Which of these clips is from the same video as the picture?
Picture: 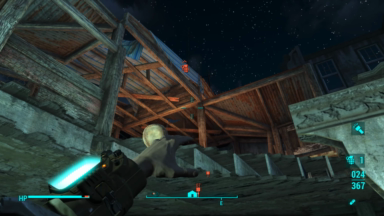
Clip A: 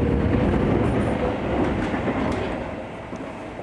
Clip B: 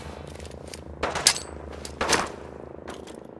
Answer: B